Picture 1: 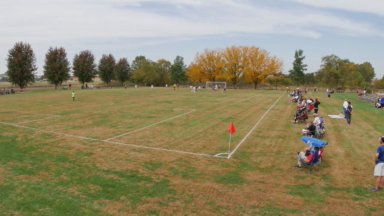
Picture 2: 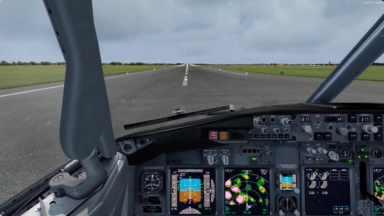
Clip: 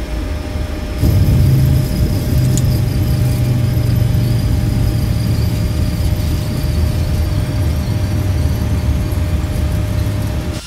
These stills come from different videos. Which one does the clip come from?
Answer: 2